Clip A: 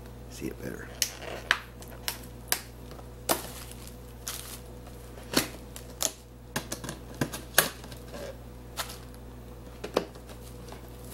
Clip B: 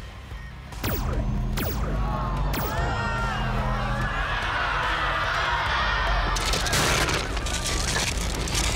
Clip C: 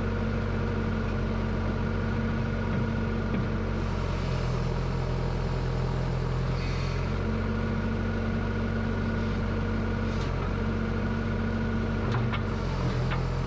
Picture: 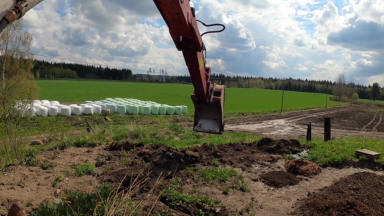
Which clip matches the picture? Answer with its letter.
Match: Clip C